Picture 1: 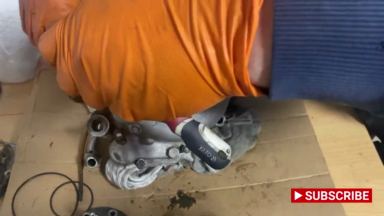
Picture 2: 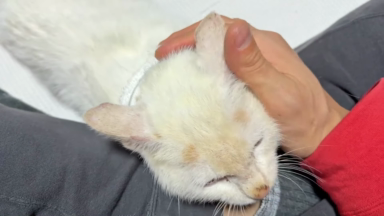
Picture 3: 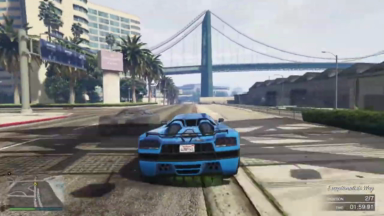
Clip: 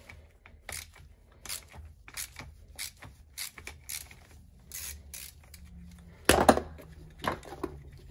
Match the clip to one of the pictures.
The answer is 1